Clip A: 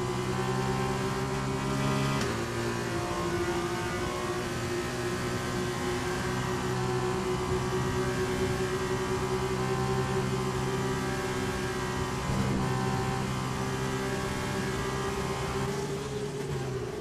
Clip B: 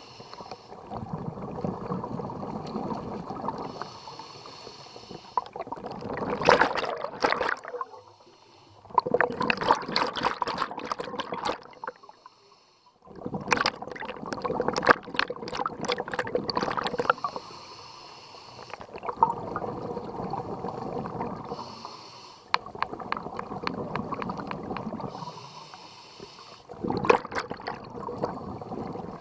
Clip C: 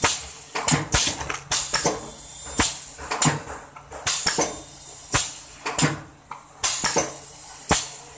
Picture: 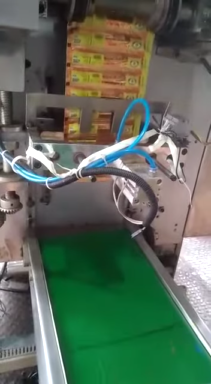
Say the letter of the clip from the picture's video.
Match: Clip C